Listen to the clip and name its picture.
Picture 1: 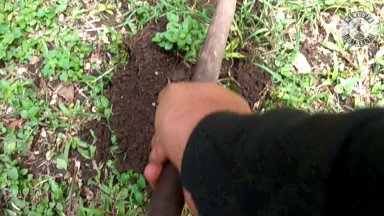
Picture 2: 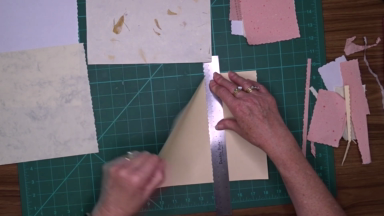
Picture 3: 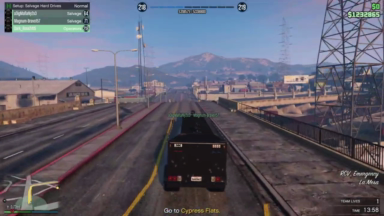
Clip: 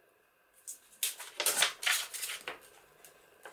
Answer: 2